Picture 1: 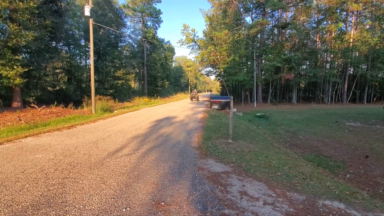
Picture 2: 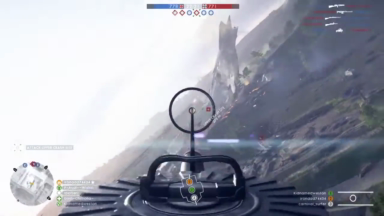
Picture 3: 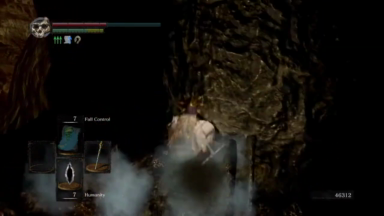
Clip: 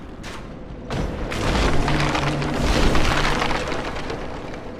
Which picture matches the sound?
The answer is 3